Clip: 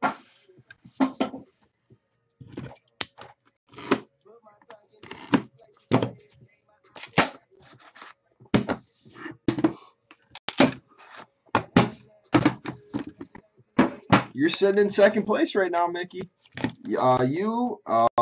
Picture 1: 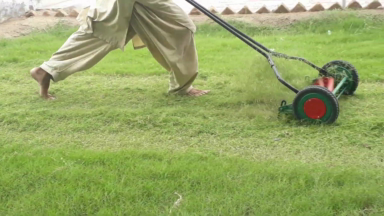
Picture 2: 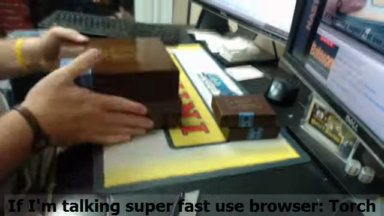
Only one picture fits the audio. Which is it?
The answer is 2